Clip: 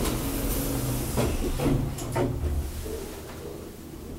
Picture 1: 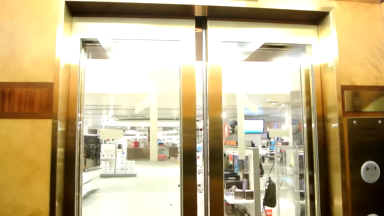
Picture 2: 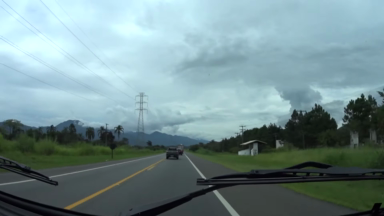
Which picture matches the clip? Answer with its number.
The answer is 1